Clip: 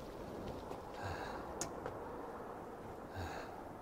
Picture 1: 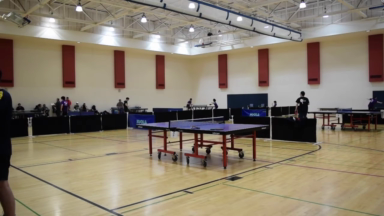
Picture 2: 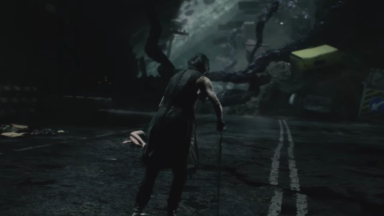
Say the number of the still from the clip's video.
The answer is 2